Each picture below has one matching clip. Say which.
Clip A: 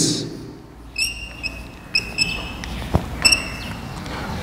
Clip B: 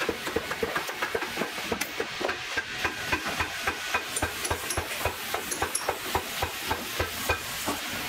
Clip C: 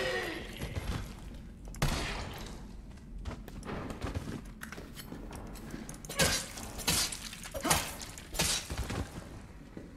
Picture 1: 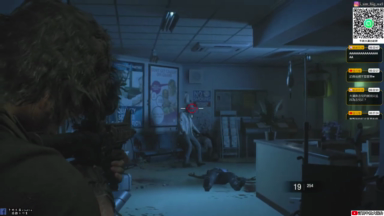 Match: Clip C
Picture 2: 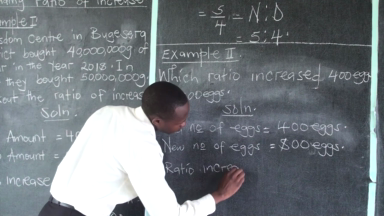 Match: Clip A